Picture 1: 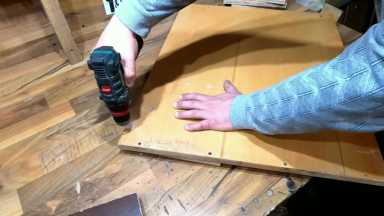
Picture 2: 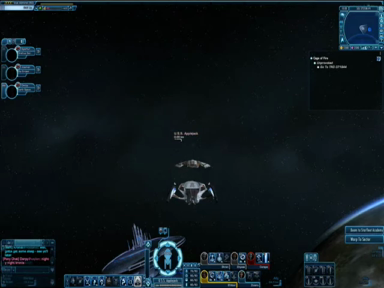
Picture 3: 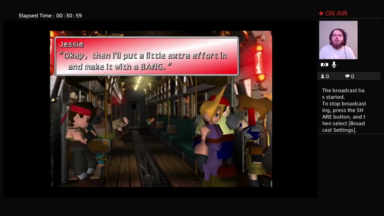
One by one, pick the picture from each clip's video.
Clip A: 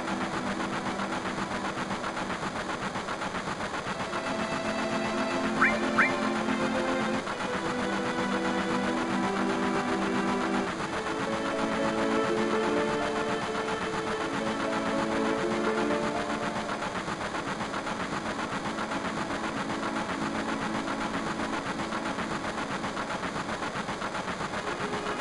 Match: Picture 3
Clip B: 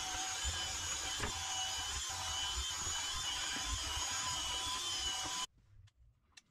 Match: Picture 1